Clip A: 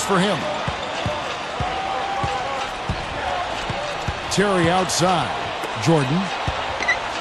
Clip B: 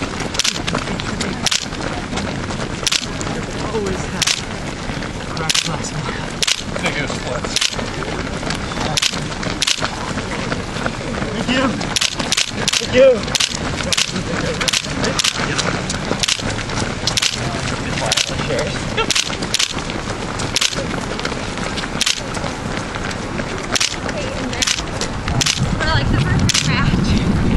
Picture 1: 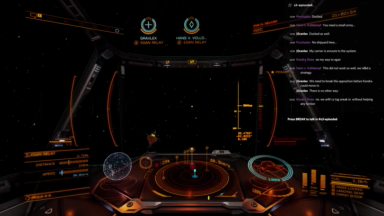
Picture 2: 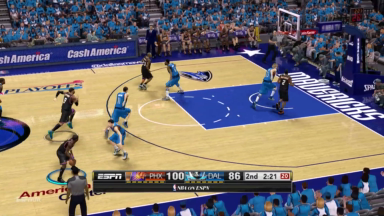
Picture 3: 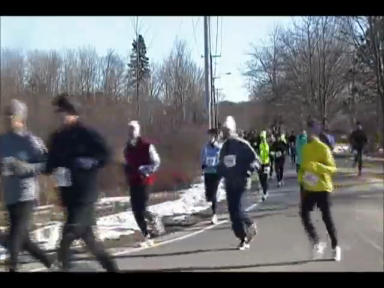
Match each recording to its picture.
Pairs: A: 2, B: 3